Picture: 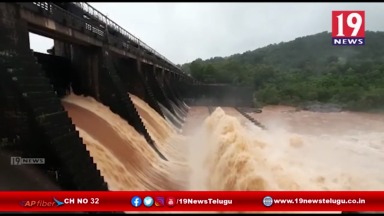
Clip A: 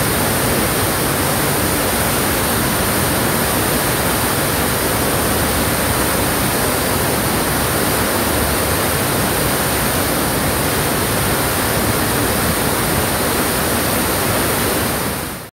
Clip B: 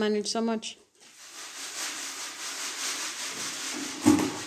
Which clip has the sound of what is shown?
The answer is A